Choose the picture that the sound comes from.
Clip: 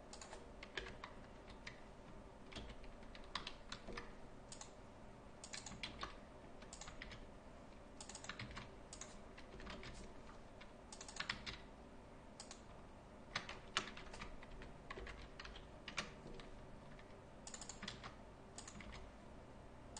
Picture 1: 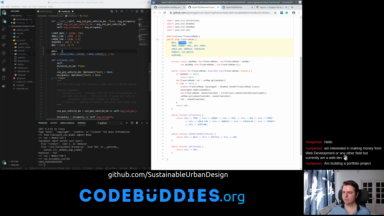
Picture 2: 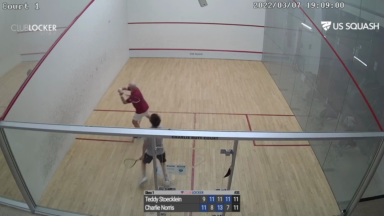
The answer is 1